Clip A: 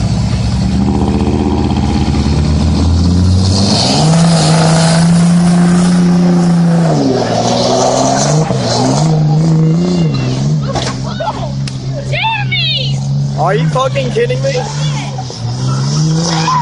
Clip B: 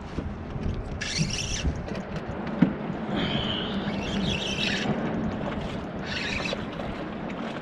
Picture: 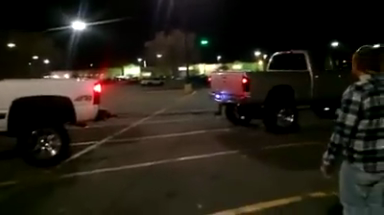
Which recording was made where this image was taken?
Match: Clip A